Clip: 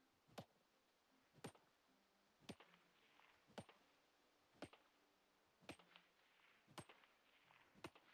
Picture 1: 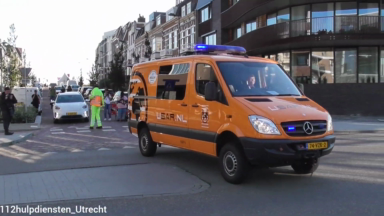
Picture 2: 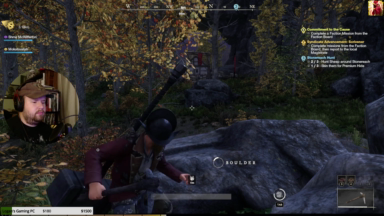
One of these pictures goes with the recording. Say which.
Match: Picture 2